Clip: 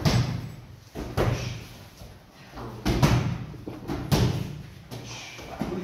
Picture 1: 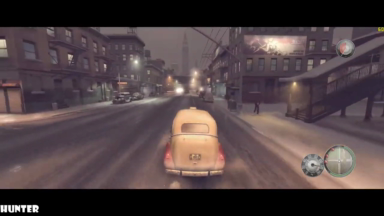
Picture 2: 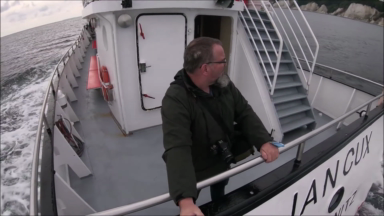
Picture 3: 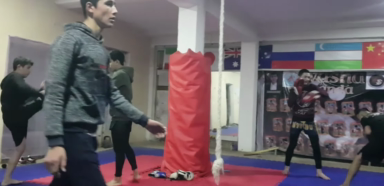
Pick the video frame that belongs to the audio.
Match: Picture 3